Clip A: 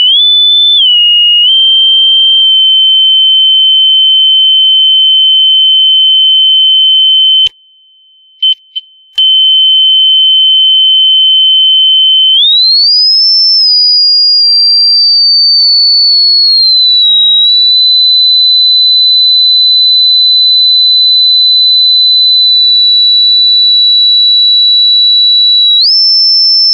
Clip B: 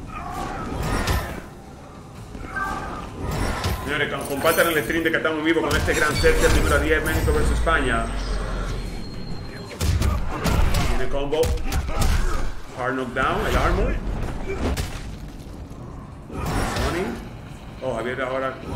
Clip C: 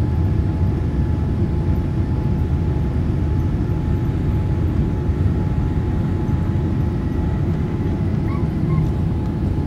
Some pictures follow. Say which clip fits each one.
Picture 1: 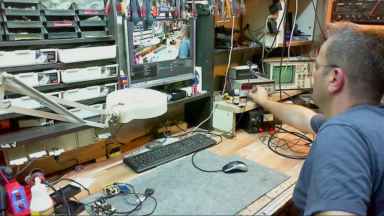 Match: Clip A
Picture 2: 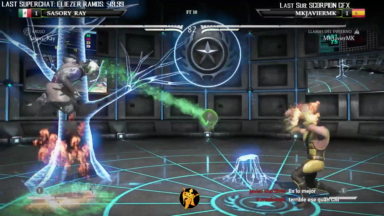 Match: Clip B